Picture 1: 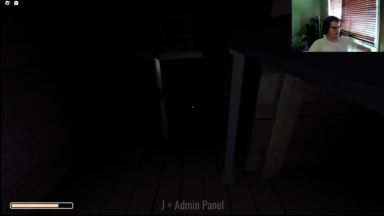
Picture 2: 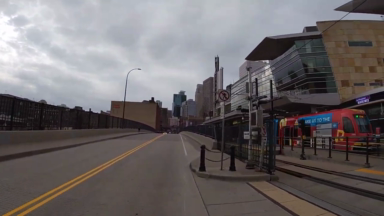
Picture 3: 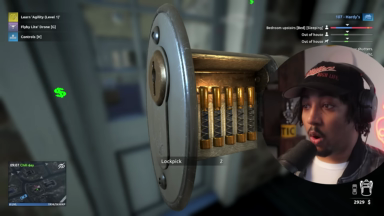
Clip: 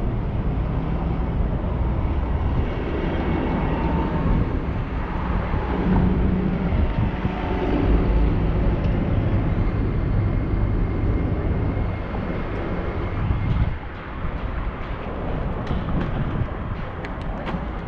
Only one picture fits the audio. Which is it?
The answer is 2